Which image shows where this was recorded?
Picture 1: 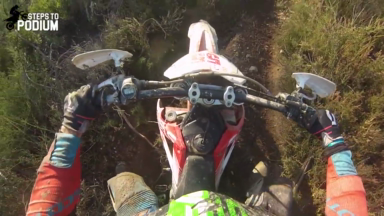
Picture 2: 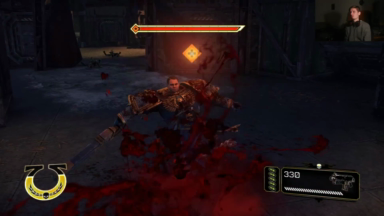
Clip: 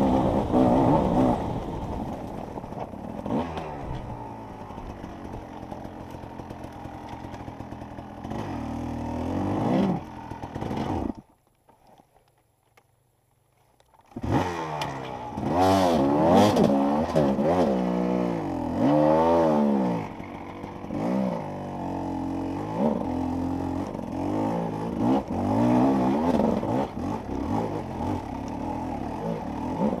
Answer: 1